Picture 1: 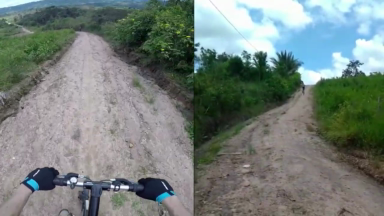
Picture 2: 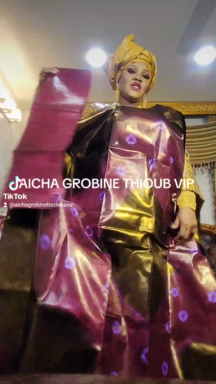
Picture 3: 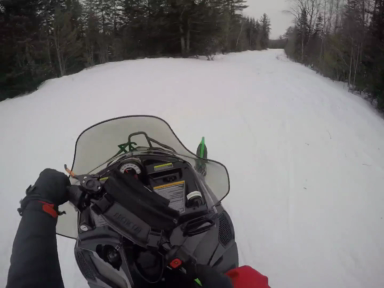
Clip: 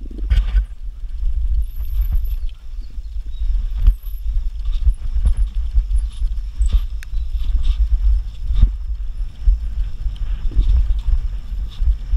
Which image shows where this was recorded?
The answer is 1